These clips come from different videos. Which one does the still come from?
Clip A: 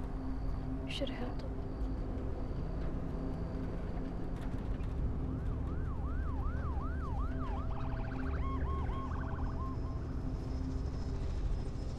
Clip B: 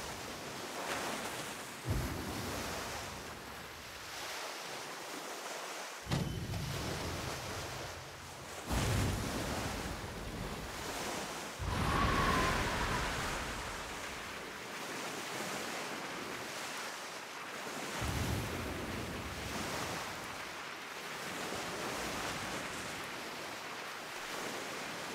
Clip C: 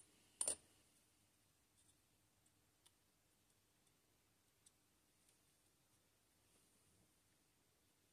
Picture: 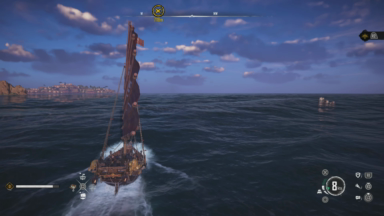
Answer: B